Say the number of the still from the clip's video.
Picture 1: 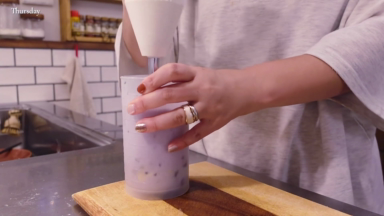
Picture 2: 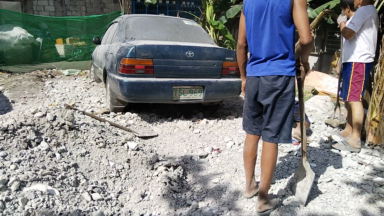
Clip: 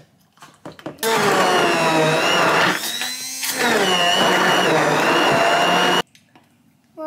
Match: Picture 1